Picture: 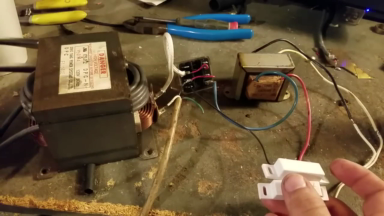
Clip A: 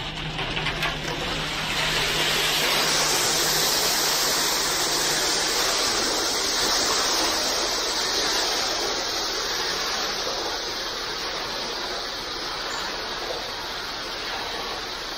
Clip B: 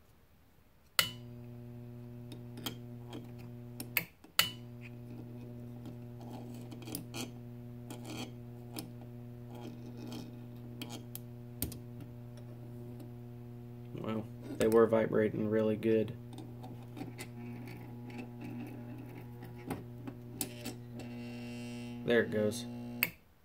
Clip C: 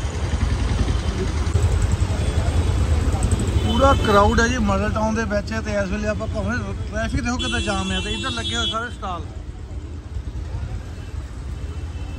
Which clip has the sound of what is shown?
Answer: B